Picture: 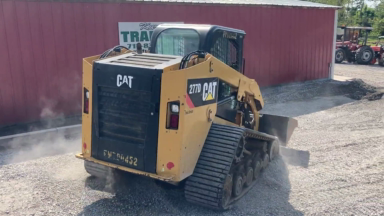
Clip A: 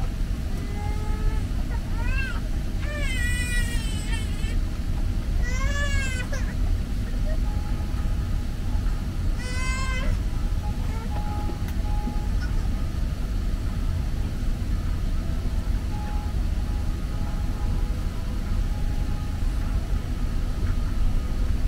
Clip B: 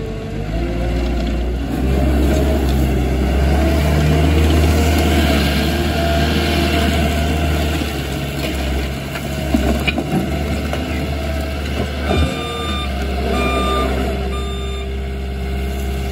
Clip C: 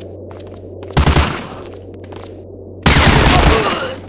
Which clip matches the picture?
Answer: B